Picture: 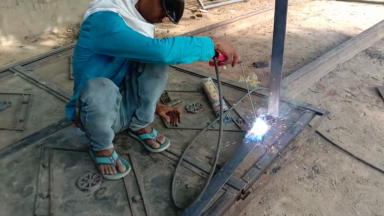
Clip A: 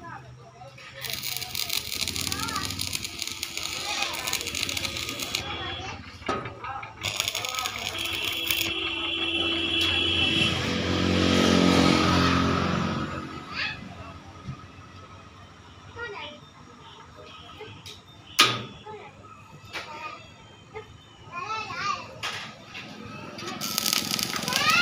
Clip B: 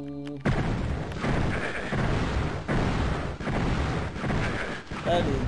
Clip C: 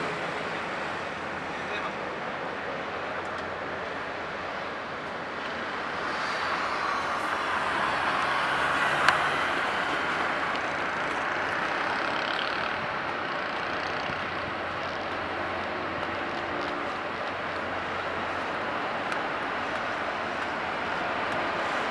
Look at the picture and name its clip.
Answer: A